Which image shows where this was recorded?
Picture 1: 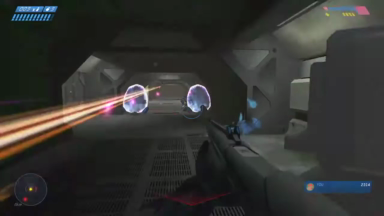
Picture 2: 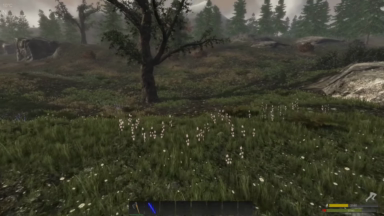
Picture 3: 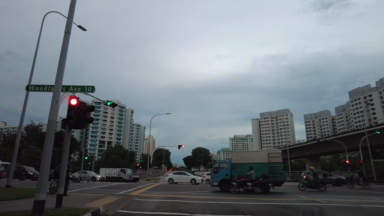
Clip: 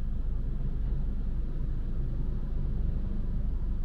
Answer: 3